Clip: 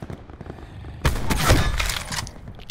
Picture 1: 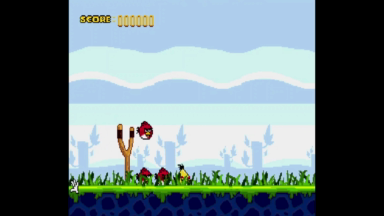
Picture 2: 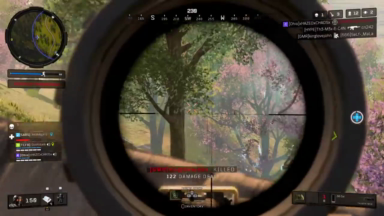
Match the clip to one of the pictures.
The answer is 2